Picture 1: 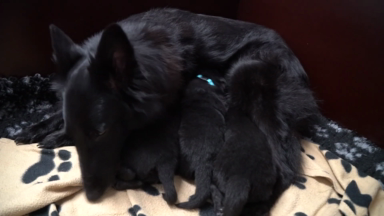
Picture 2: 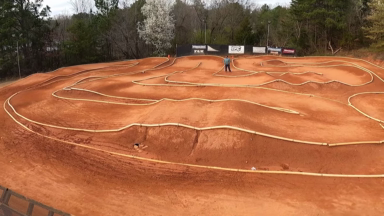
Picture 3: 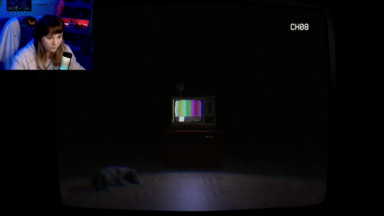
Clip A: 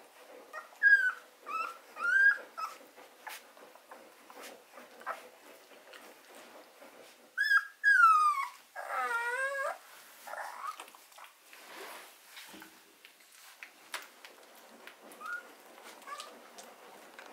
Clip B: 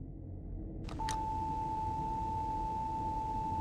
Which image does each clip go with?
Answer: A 1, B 3